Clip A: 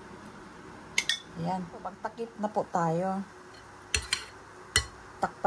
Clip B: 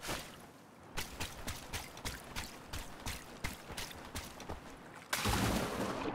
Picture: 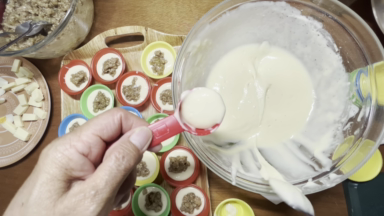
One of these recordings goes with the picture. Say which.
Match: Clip A